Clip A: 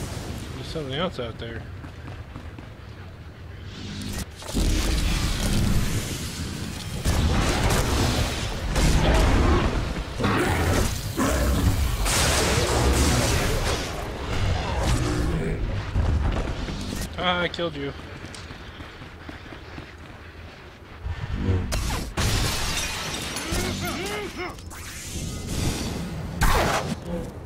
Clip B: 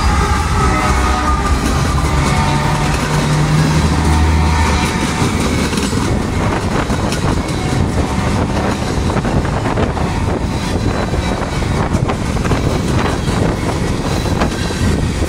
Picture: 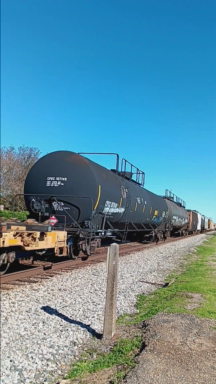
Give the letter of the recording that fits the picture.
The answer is B